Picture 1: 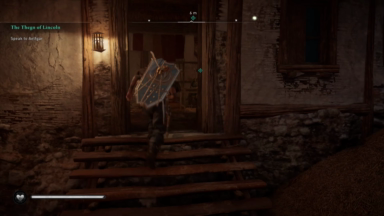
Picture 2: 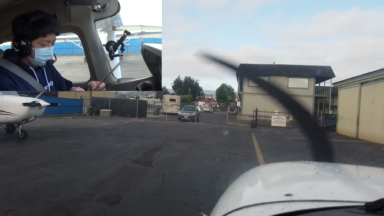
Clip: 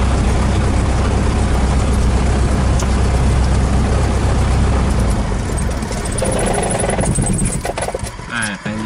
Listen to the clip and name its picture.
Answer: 2